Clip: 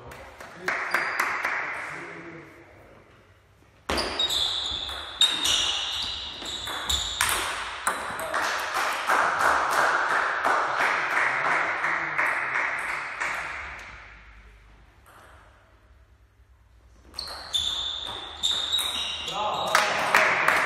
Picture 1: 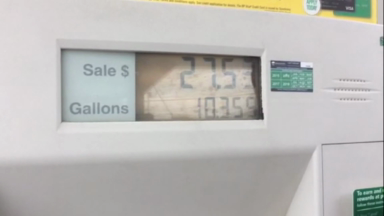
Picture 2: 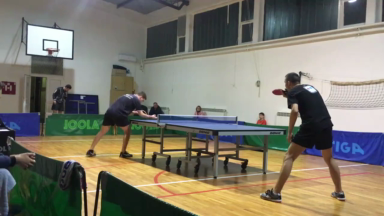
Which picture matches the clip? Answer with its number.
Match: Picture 2